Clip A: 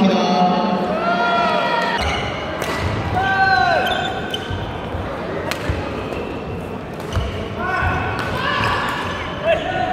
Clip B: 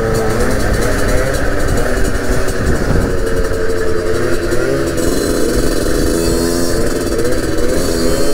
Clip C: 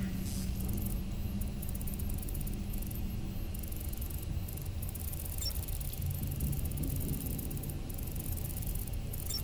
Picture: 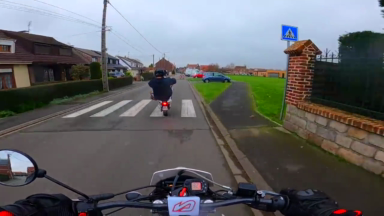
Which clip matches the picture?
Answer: B